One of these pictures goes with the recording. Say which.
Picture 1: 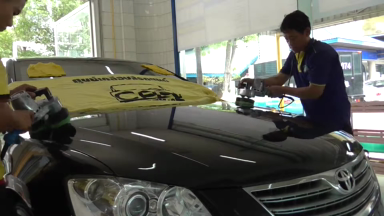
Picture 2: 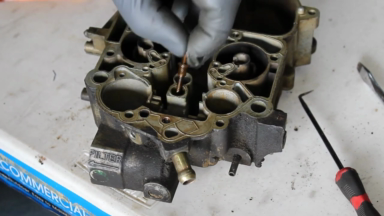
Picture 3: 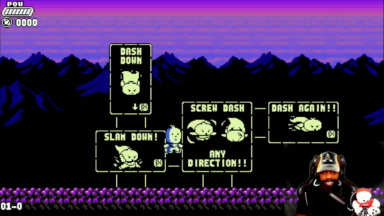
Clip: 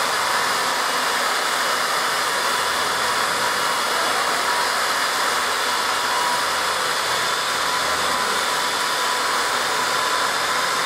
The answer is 1